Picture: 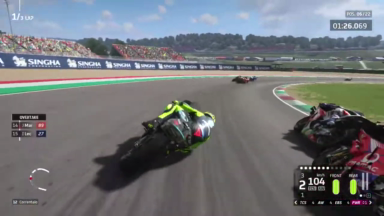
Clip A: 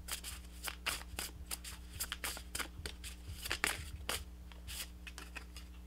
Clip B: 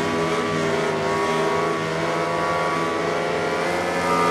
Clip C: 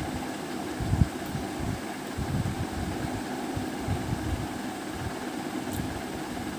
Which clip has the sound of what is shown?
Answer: B